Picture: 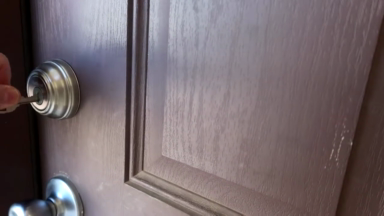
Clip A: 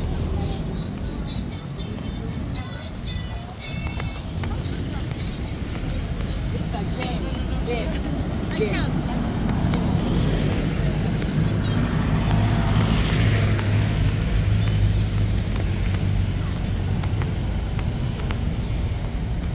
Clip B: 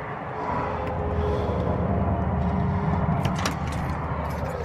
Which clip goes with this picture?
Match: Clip B